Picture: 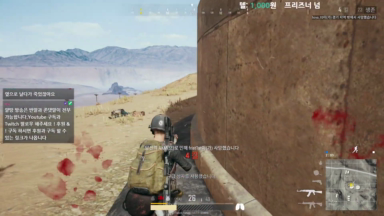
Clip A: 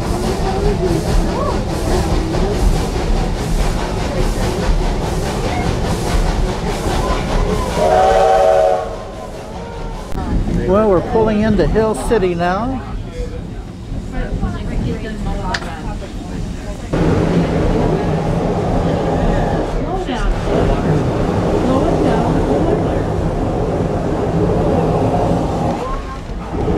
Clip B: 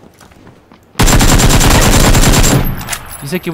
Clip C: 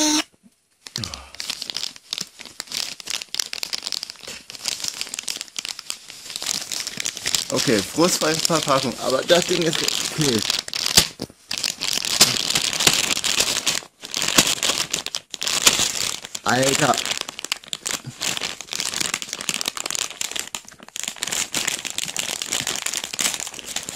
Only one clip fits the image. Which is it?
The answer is B